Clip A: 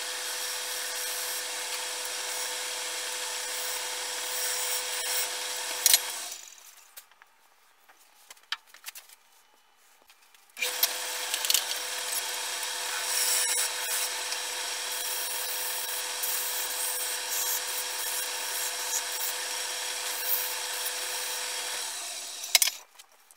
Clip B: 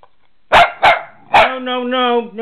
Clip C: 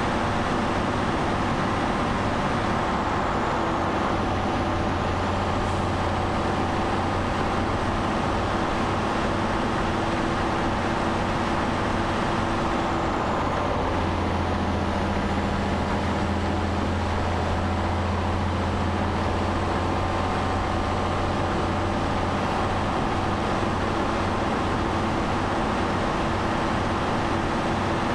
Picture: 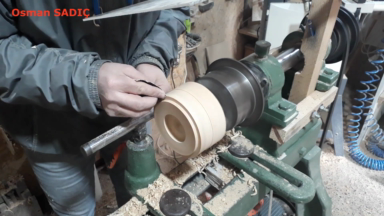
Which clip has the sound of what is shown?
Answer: A